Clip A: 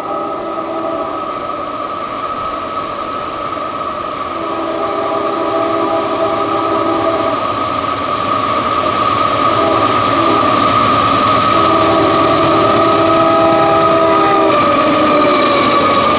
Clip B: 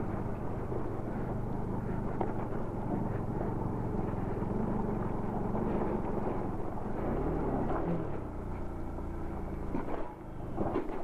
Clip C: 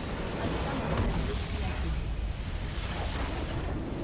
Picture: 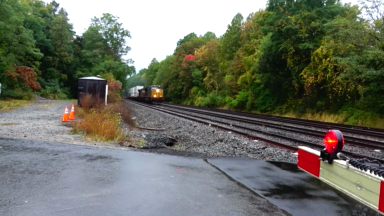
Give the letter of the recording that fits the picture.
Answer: A